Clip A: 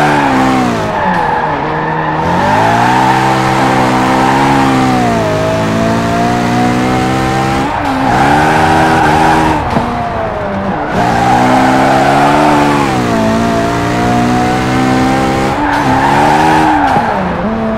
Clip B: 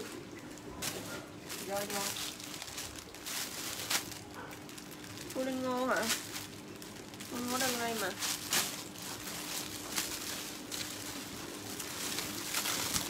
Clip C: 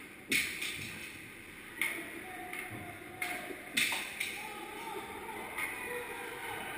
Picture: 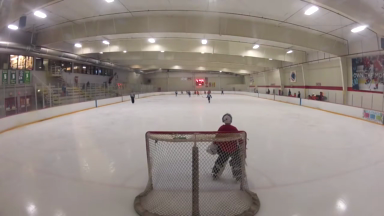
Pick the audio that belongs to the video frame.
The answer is C